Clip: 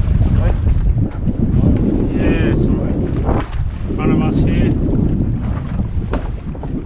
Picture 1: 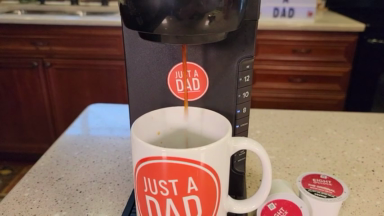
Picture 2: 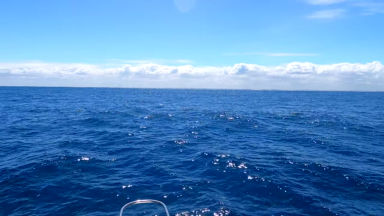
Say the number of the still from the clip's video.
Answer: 2